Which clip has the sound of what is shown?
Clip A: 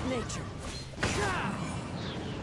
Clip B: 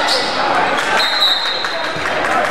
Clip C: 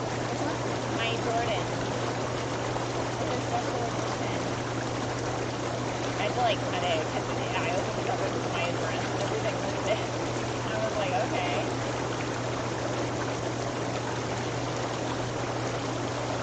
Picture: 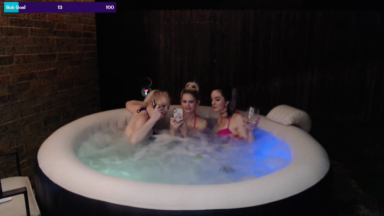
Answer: C